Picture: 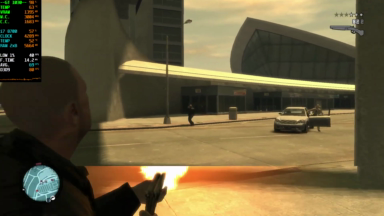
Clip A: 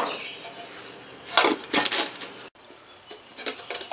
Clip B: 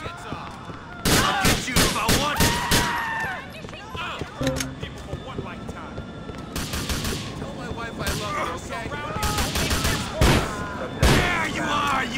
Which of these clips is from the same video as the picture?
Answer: B